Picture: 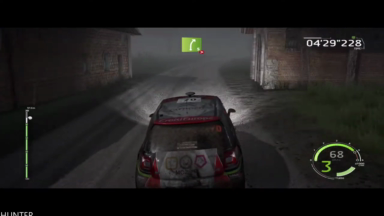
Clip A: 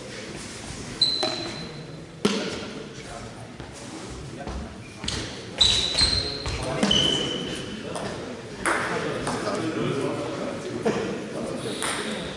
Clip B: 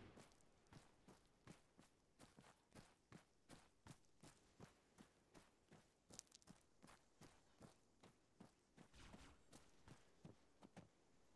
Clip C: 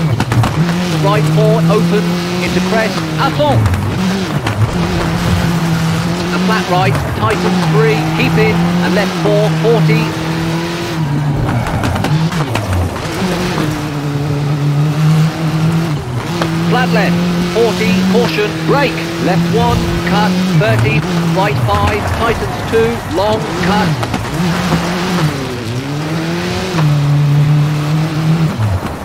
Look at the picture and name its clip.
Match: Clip C